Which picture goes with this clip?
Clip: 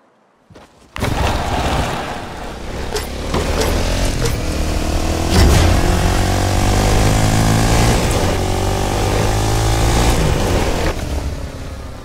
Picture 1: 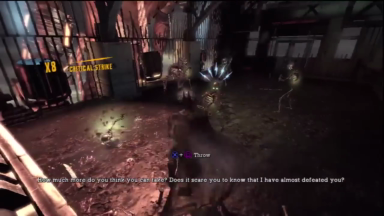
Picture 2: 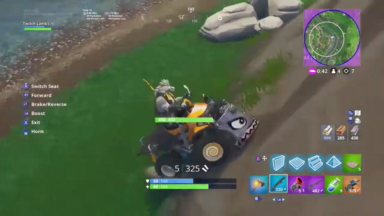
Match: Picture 2